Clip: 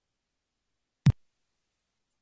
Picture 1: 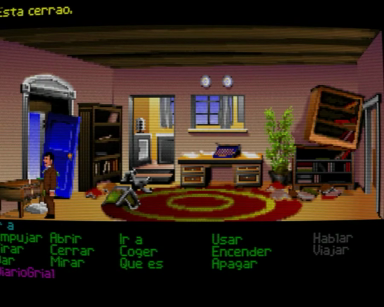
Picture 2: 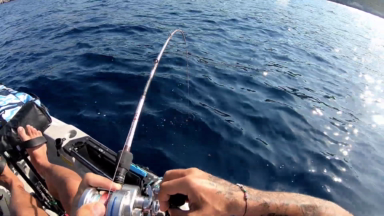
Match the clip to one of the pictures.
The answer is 1